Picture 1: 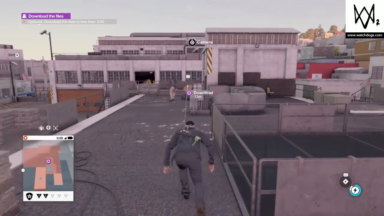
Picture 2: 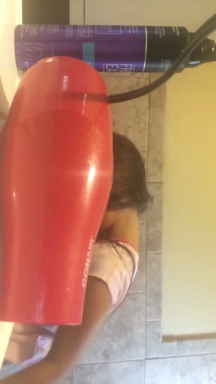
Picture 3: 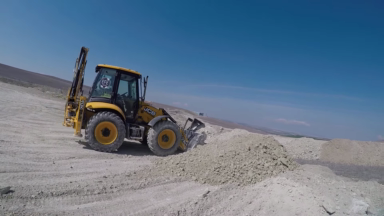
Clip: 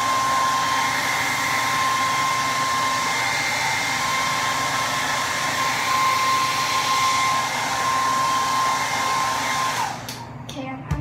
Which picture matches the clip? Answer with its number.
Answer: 2